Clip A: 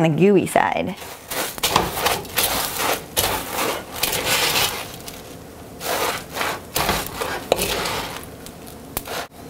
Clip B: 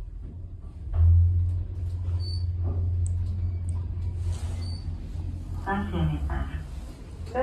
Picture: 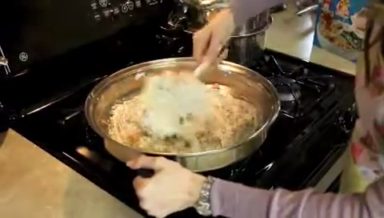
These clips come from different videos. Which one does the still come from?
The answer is A